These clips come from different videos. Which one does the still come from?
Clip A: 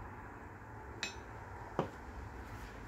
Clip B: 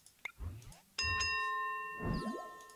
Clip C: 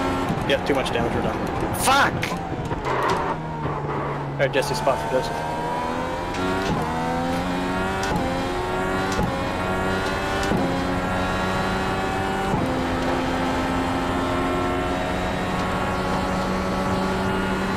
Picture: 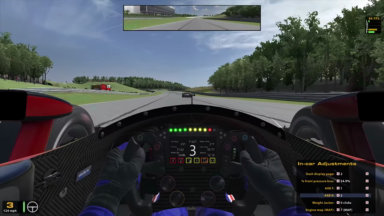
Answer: C